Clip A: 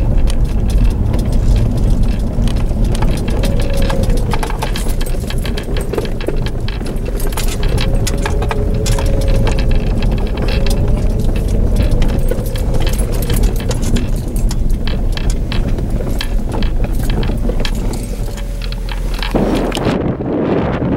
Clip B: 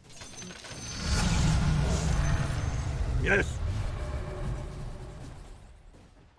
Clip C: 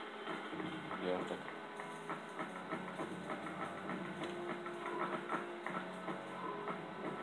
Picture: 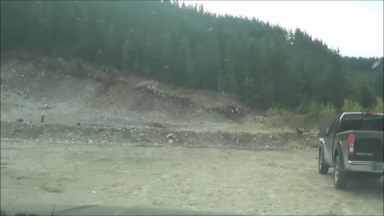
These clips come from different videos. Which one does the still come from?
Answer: A